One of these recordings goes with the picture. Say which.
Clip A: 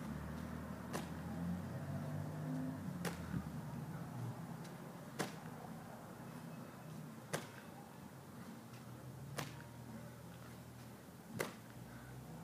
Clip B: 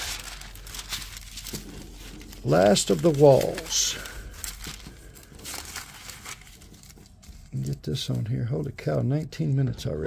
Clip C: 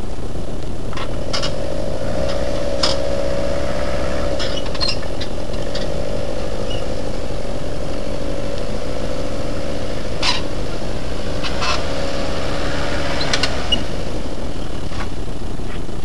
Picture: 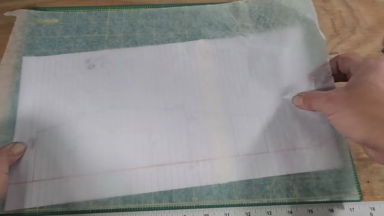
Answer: B